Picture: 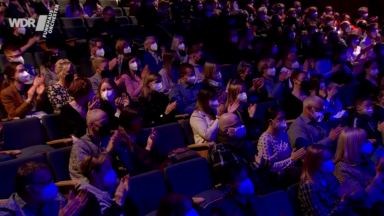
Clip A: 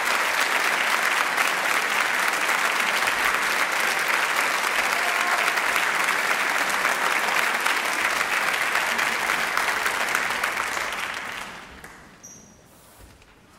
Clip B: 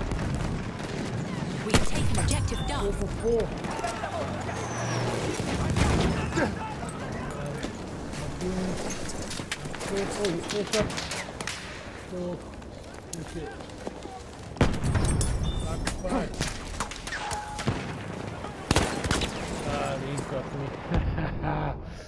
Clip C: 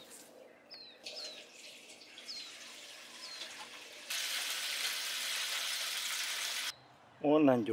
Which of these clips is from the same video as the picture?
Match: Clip A